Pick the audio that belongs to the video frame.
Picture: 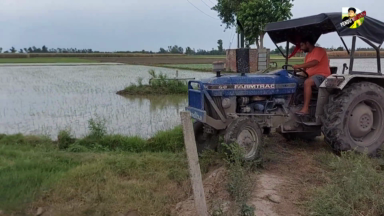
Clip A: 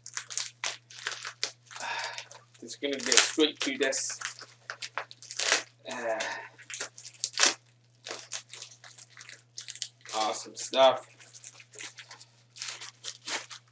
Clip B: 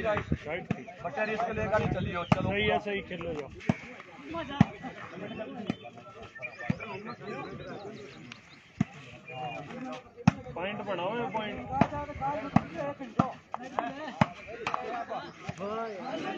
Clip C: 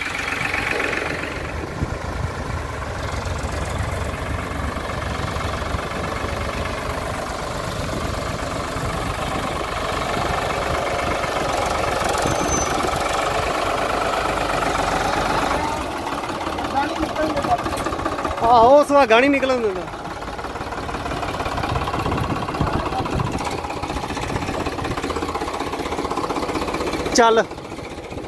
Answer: C